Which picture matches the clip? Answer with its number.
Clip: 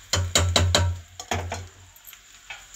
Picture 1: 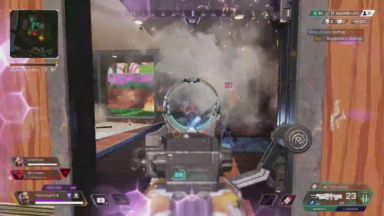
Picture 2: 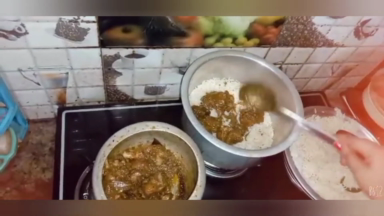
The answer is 2